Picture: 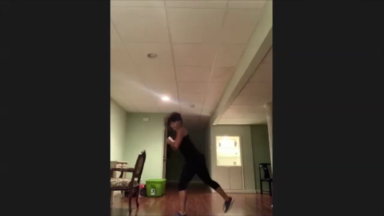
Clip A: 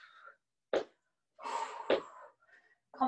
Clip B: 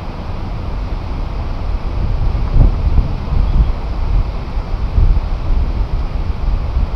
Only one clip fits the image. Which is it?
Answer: A